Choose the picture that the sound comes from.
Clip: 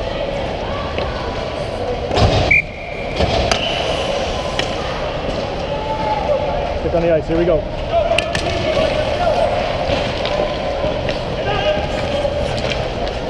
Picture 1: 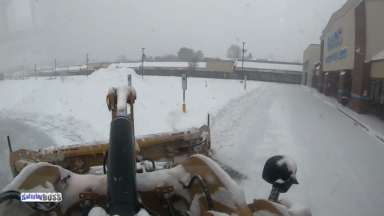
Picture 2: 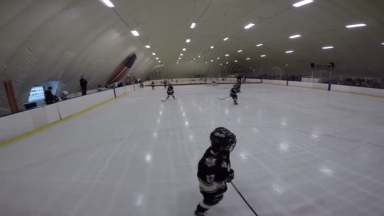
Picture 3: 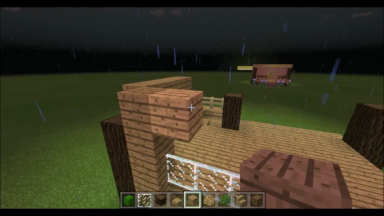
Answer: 2